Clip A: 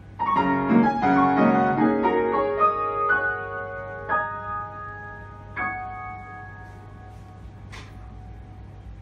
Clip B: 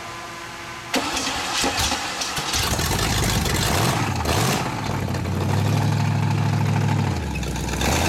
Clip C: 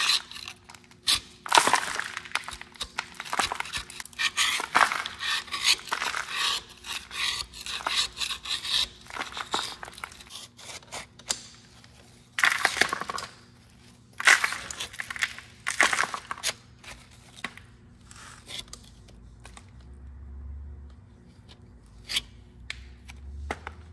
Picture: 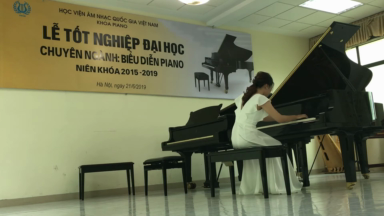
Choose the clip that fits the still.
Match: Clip A